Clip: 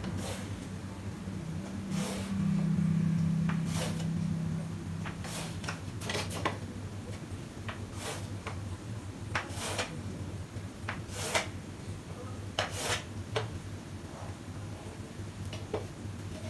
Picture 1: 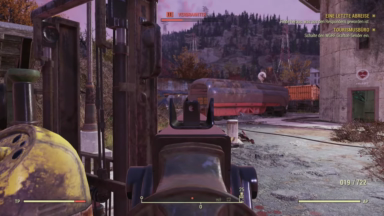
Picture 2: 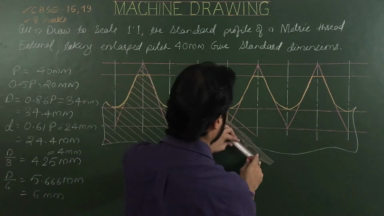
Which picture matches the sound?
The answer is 2